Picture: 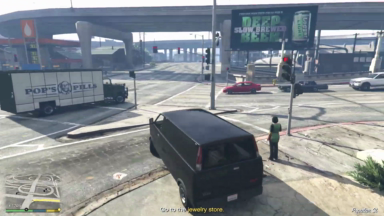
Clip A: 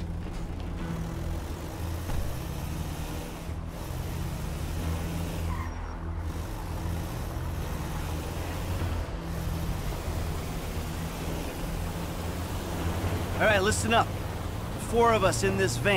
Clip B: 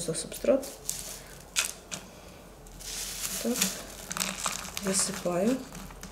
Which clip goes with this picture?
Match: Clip A